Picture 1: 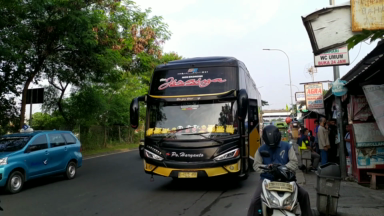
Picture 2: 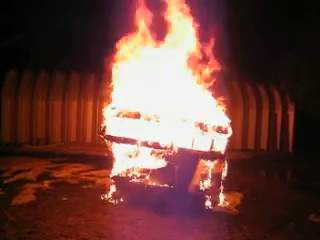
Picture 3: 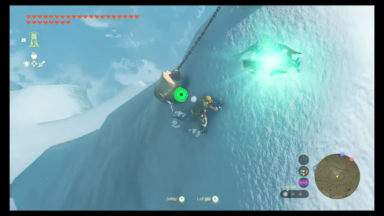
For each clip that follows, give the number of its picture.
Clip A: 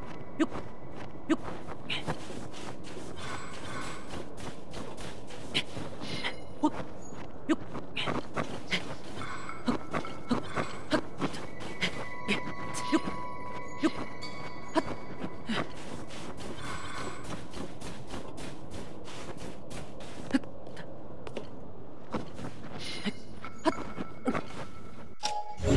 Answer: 3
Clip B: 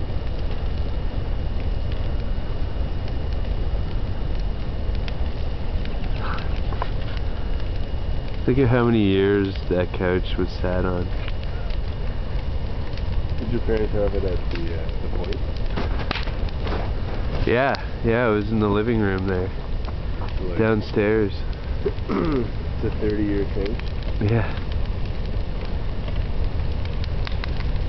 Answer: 2